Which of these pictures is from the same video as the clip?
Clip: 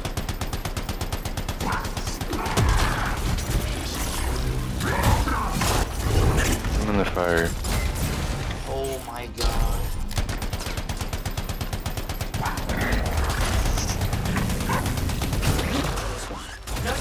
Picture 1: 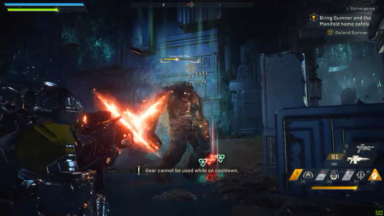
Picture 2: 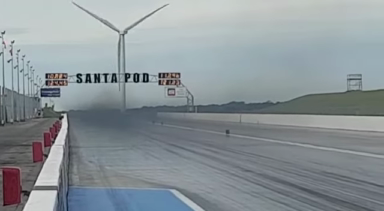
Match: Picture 1